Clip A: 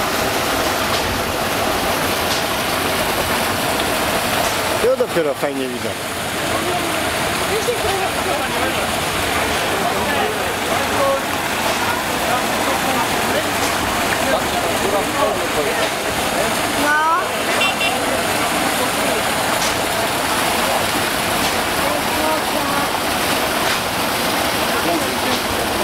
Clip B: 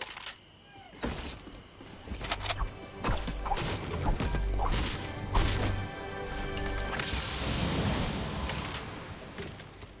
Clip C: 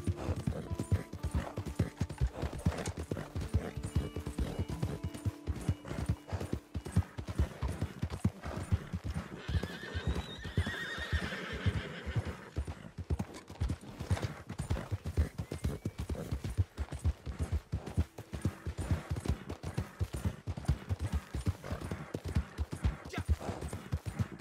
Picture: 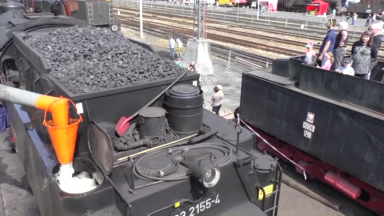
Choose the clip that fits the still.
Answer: A